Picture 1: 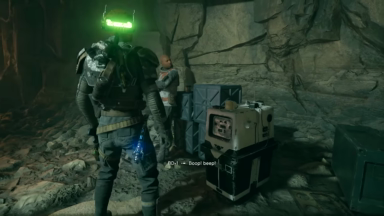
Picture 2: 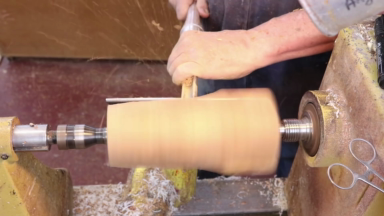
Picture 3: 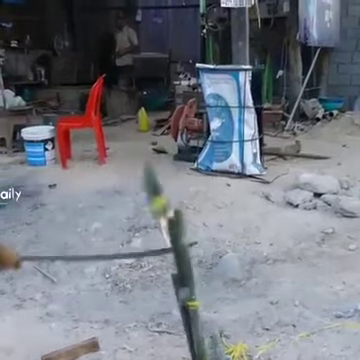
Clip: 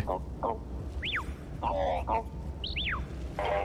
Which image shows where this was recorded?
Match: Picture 1